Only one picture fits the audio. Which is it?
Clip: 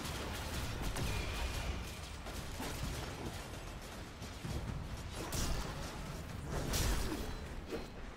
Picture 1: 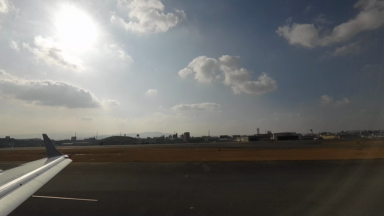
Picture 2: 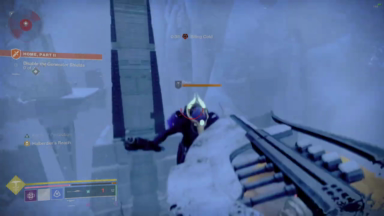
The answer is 2